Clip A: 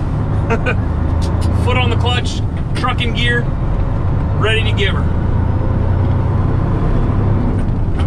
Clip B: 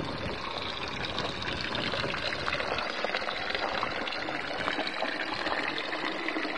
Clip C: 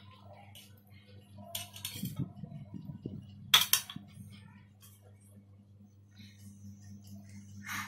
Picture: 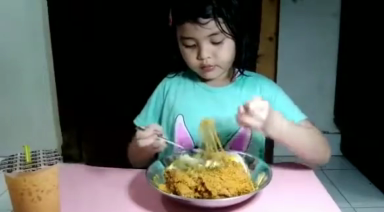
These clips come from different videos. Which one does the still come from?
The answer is C